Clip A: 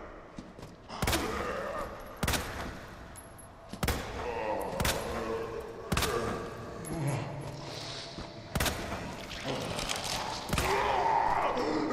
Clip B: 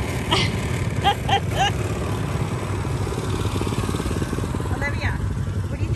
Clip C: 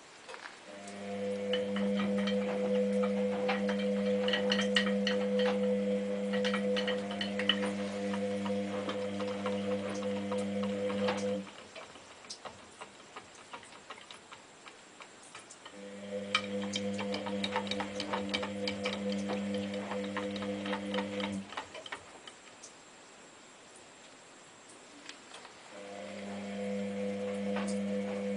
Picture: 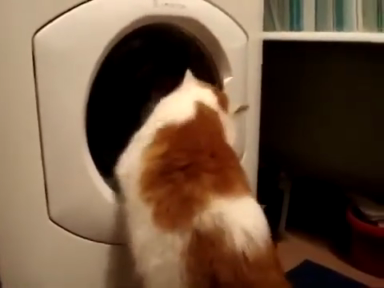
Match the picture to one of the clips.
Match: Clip C